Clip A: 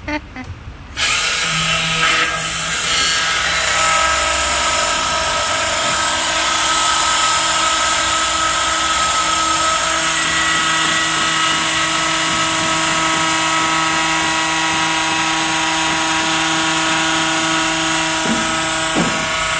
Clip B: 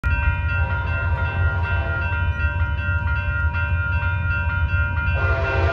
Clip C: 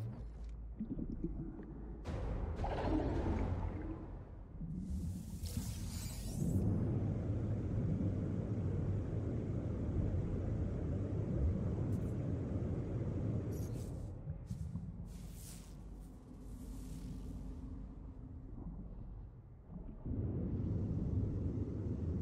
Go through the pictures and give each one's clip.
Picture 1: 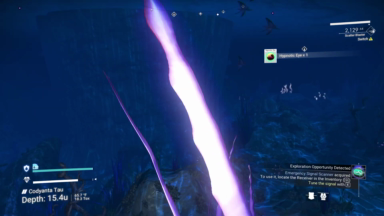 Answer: C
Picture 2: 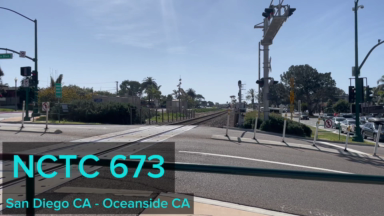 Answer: B